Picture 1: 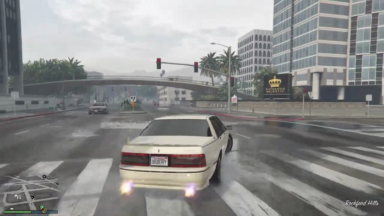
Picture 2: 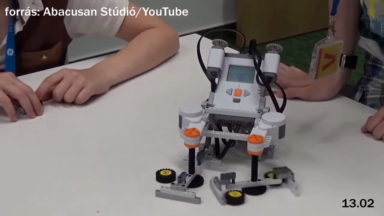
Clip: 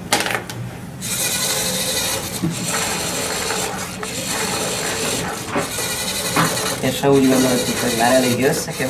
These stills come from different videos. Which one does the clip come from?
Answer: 2